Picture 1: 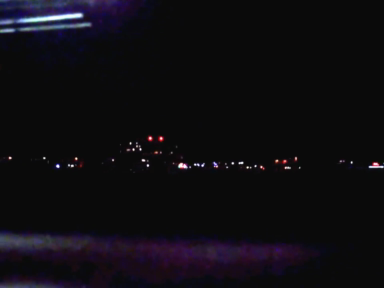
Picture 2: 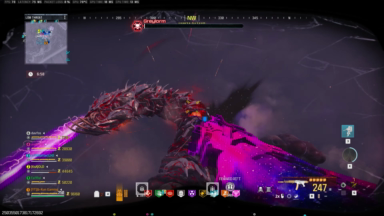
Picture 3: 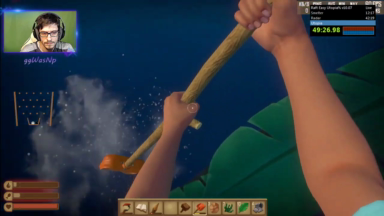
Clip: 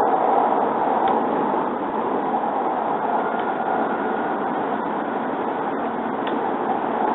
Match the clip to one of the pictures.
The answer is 1